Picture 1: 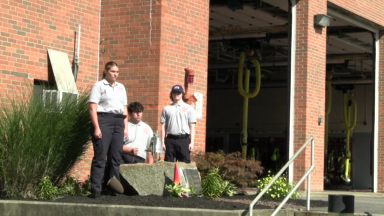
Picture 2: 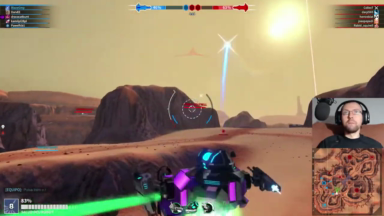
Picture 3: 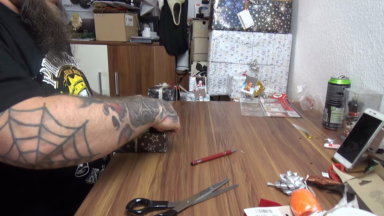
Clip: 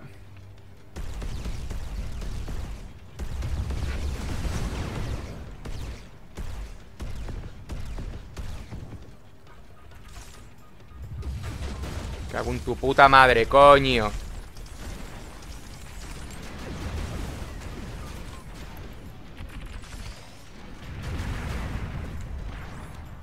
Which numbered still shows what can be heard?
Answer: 2